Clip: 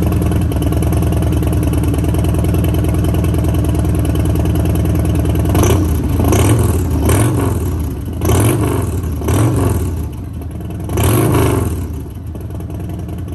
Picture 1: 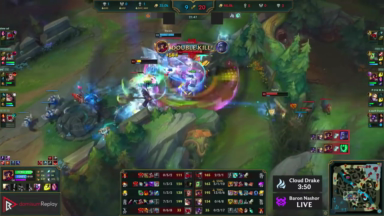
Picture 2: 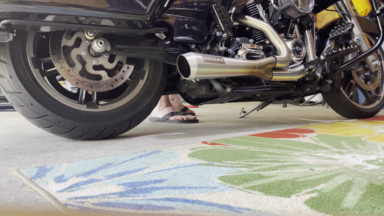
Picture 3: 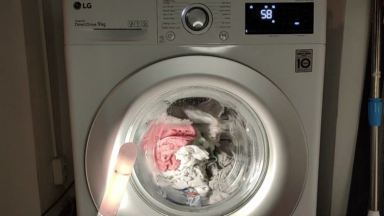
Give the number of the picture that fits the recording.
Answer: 2